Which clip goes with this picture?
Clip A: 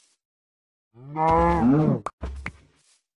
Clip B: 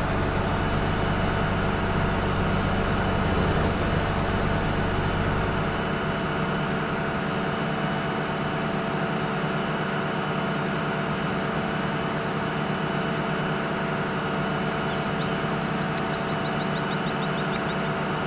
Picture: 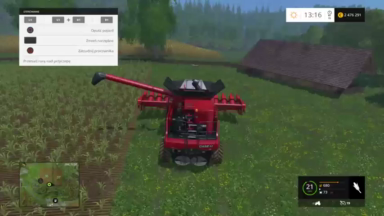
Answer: B